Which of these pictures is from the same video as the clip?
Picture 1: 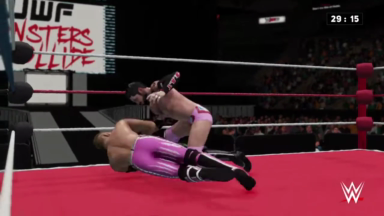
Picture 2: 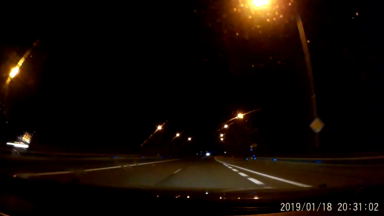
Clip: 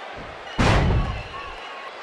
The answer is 1